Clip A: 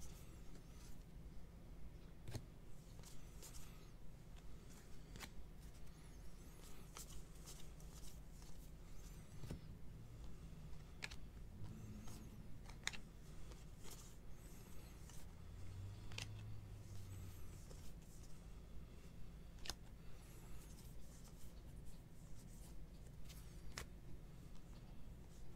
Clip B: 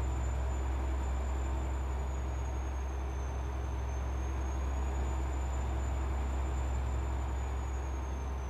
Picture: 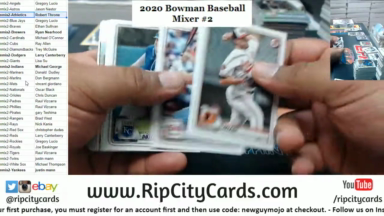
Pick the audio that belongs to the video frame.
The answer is A